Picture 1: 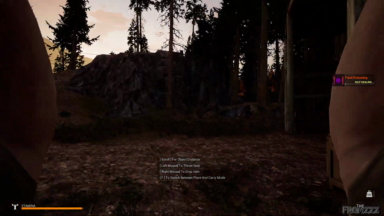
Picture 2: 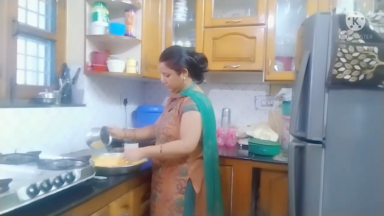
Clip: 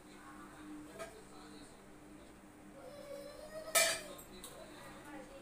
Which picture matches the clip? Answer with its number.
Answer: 2